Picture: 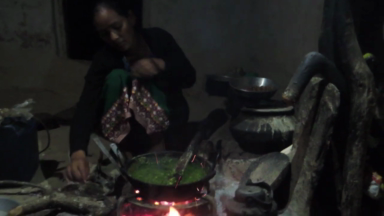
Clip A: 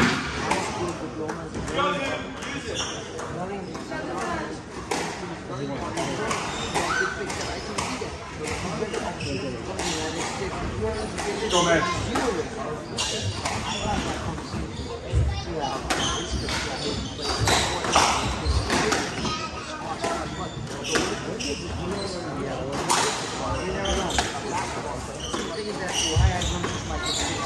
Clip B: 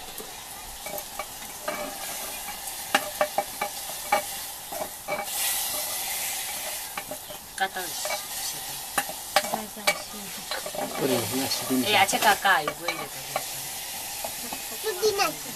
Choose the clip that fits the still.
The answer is B